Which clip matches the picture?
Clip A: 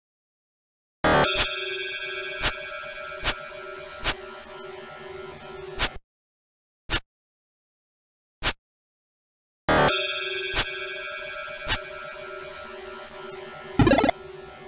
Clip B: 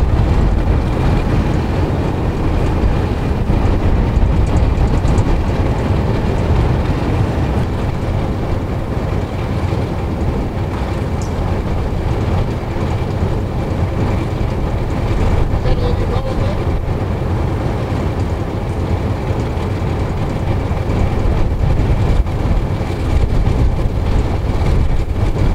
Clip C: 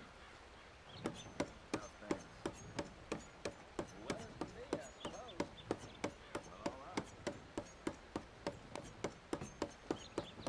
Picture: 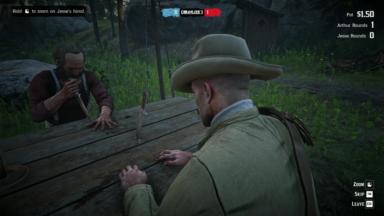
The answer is C